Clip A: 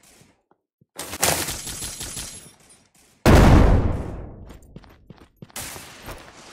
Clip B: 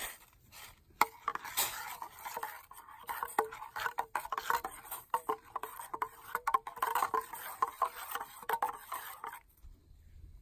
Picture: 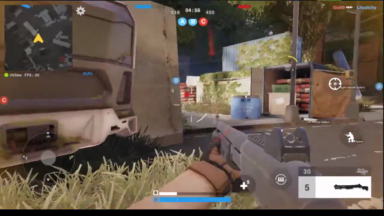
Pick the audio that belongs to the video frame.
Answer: A